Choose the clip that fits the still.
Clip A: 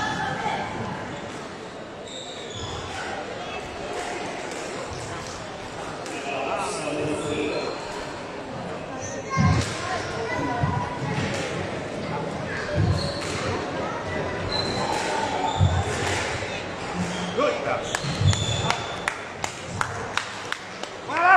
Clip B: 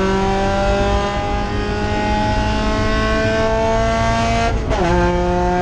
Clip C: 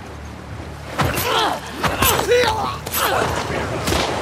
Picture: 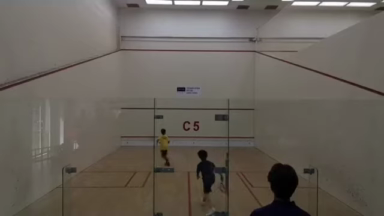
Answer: A